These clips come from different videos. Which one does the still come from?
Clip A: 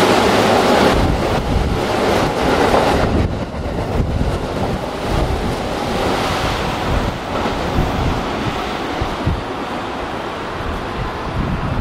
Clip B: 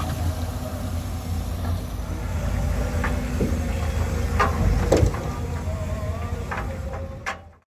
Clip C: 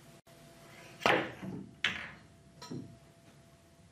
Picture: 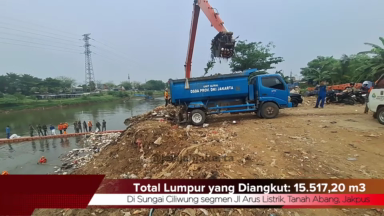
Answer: B